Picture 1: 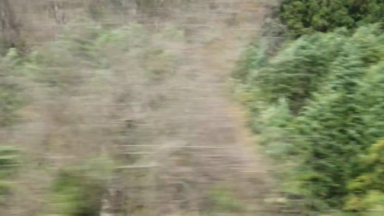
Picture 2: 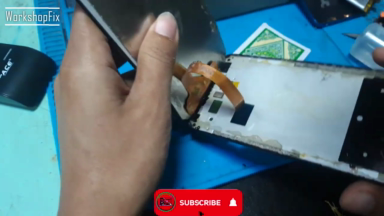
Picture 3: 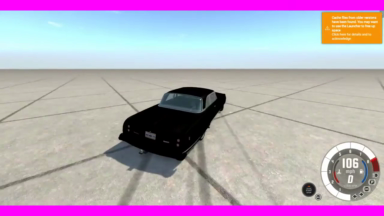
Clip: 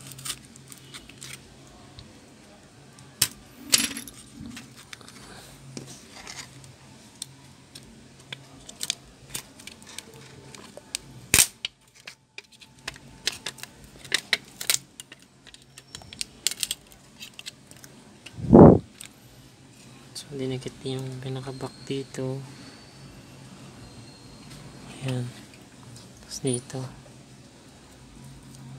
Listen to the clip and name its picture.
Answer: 2